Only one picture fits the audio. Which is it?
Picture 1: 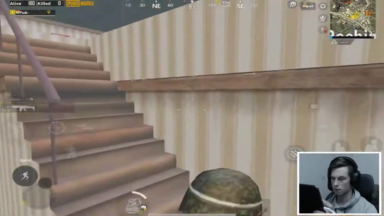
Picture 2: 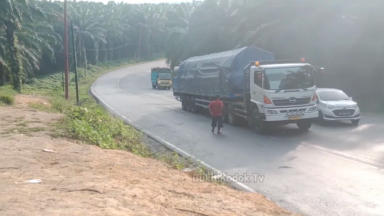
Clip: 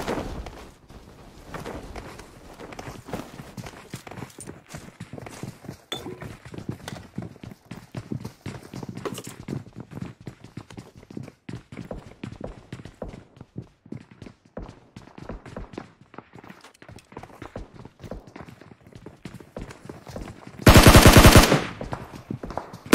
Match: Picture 1